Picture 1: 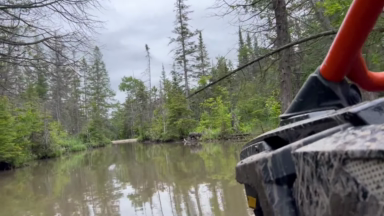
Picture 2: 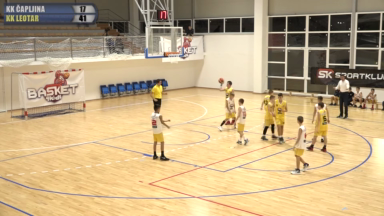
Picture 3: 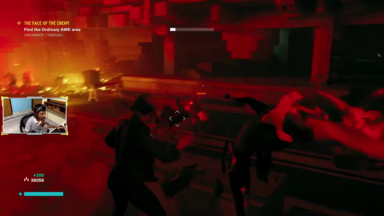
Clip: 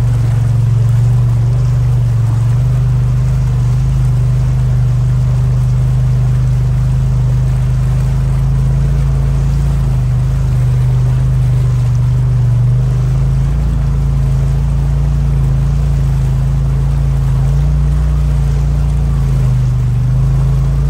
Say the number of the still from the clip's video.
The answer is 1